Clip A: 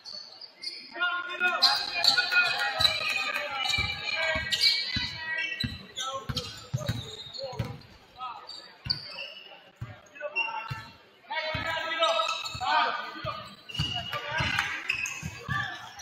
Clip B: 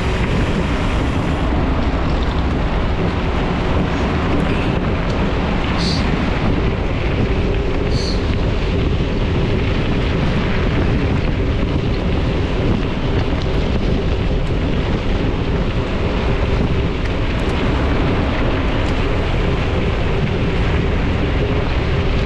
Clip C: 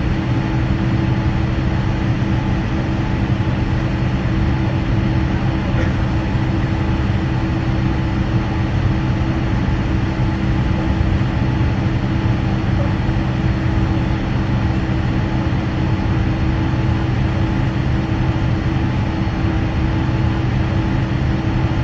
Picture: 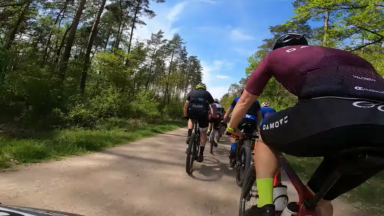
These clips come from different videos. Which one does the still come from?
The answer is B